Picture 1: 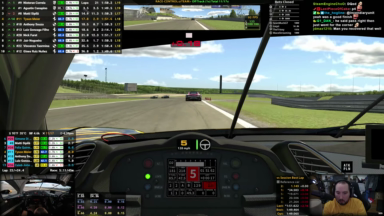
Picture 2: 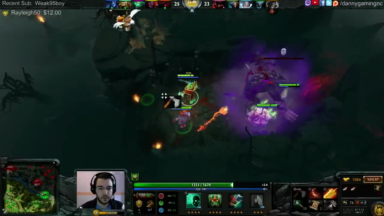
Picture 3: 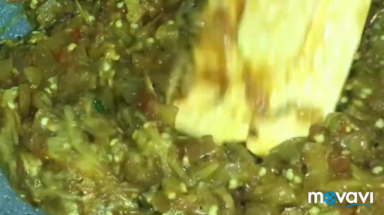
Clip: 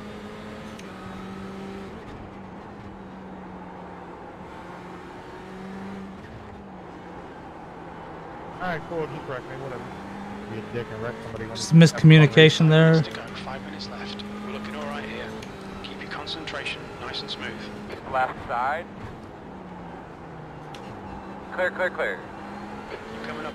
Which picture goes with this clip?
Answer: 1